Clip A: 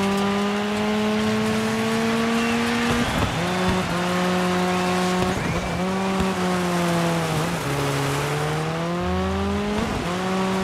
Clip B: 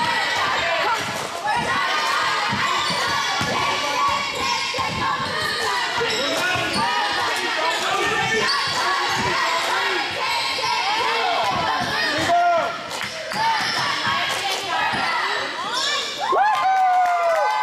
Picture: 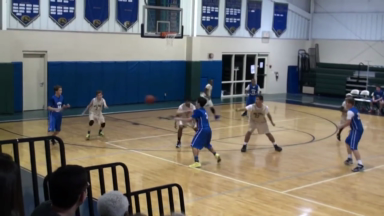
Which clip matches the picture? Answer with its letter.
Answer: B